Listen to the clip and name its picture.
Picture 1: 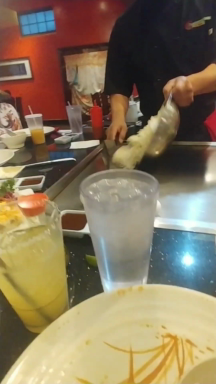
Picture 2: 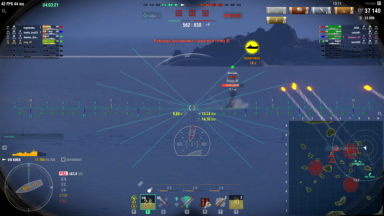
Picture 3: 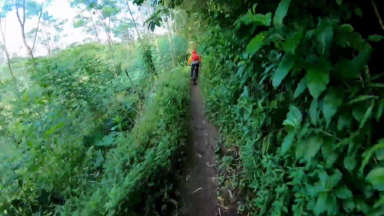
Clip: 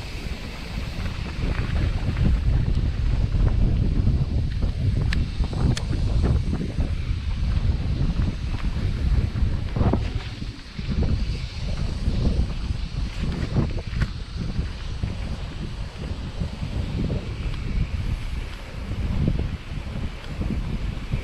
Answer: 3